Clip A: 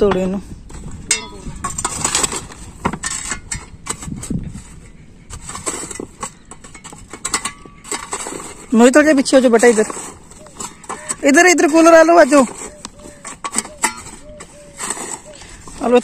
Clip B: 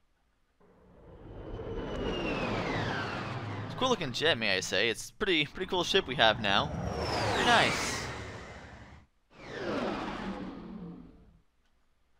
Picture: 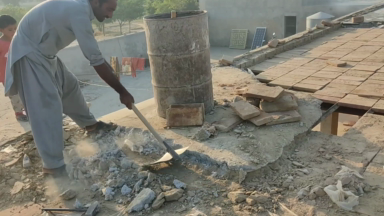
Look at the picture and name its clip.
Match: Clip A